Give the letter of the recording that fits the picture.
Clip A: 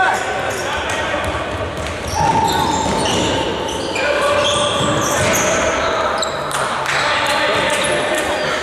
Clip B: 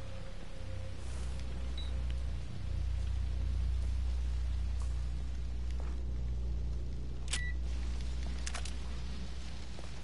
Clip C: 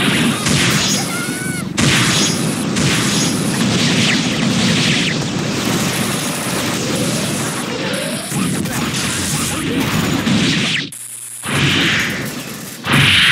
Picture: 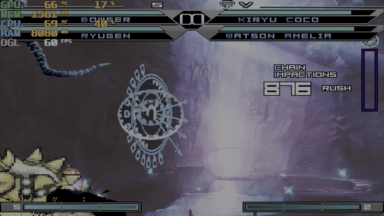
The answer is C